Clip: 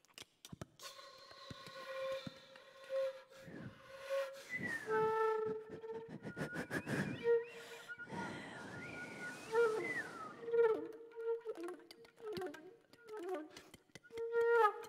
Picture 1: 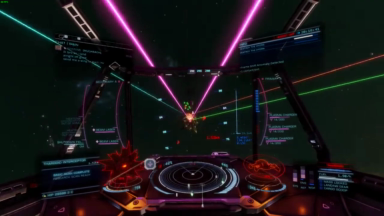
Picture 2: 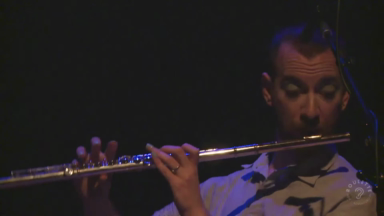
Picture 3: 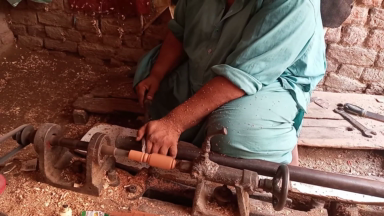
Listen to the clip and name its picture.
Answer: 2